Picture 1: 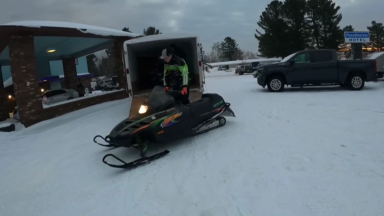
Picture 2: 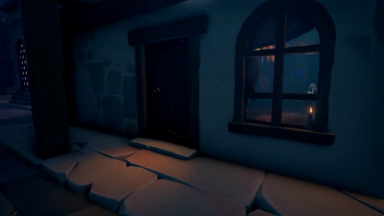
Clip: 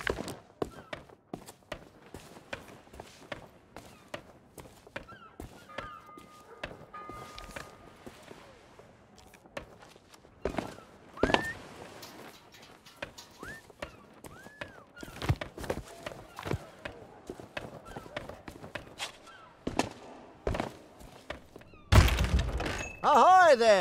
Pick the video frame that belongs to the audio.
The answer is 2